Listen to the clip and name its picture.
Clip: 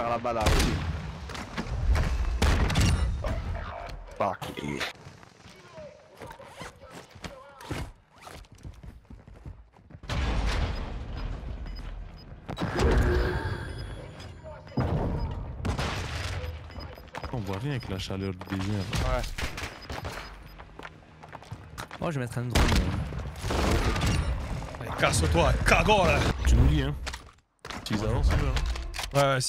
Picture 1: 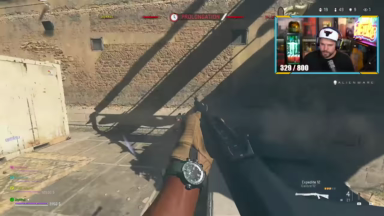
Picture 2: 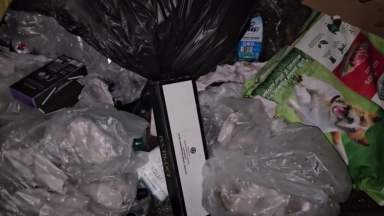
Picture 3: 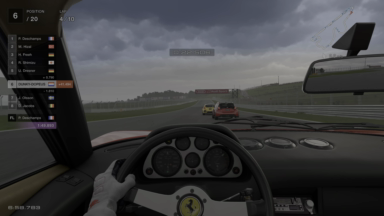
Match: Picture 1